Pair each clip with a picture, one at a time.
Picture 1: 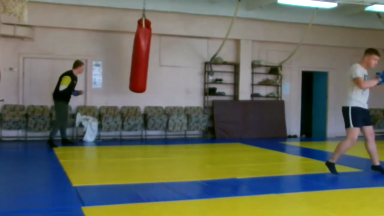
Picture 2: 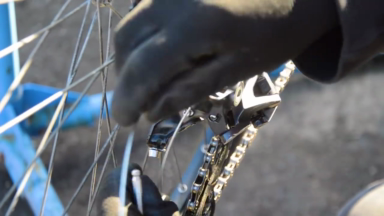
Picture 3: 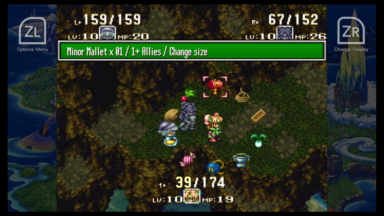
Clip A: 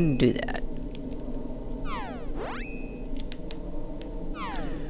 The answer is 3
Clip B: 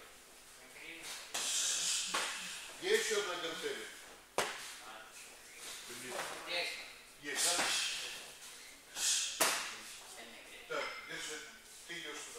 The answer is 1